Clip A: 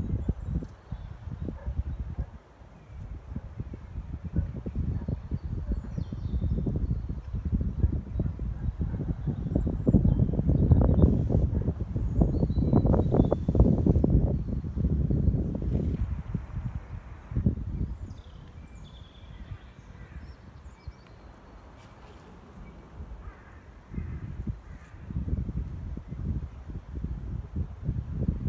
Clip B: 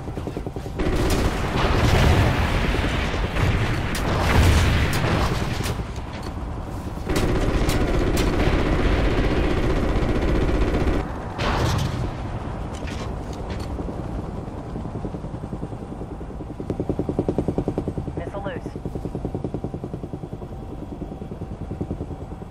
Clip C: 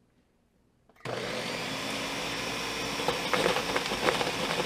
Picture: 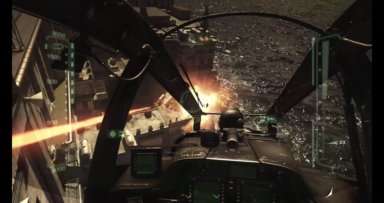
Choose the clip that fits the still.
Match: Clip B